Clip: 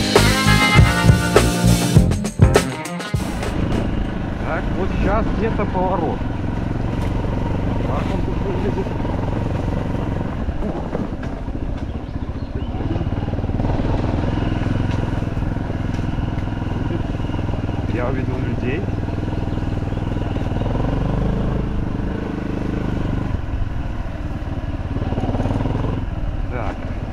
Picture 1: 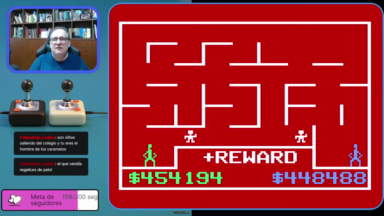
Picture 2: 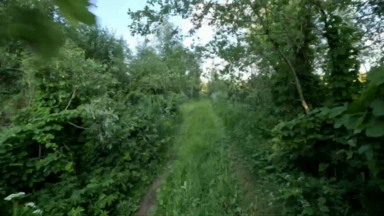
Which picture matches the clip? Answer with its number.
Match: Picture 2